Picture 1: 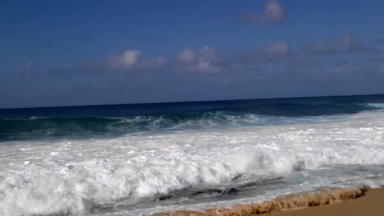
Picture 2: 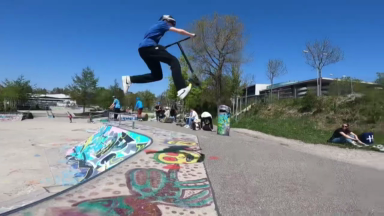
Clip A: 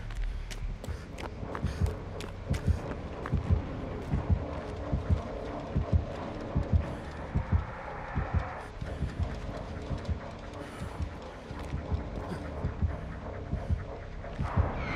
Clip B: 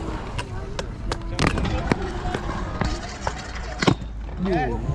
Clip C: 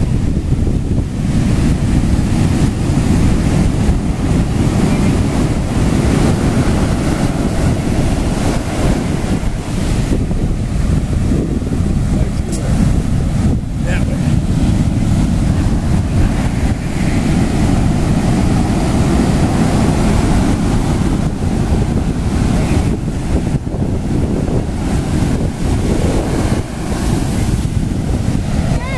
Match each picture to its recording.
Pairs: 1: C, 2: B